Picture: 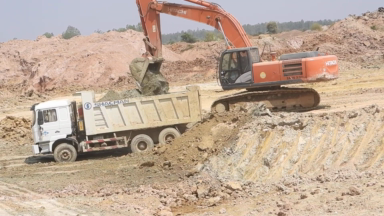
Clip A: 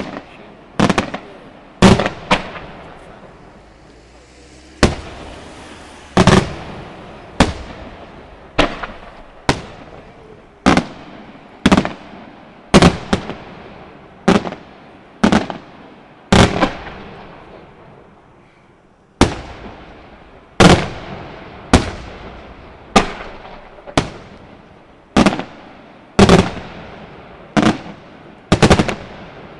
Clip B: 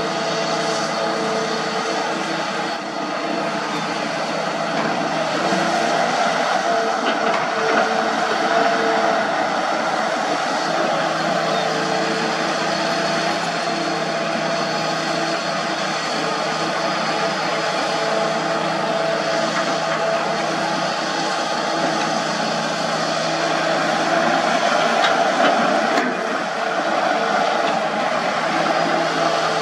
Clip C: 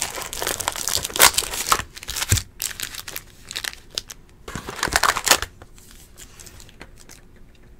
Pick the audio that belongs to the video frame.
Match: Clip B